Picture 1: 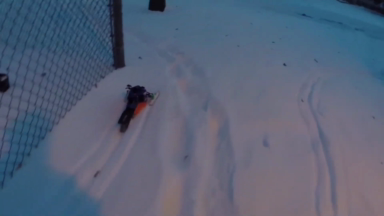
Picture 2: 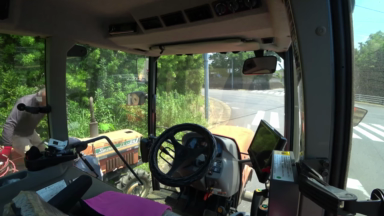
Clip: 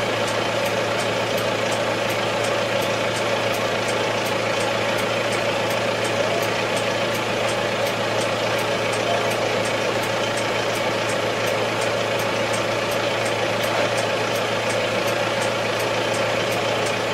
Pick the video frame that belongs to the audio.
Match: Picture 2